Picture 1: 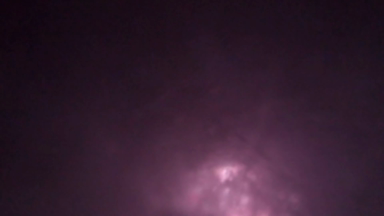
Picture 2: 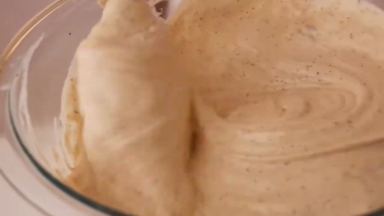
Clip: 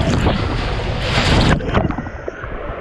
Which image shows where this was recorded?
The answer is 1